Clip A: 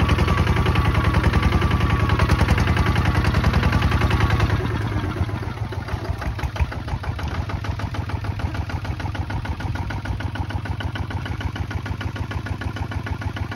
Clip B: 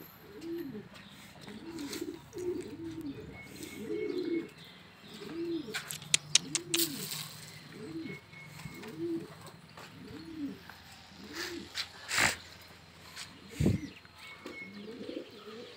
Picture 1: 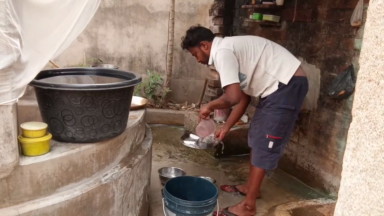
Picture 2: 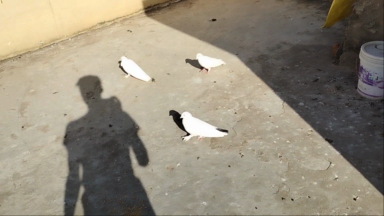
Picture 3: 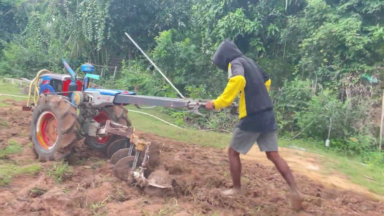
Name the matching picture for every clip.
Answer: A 3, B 2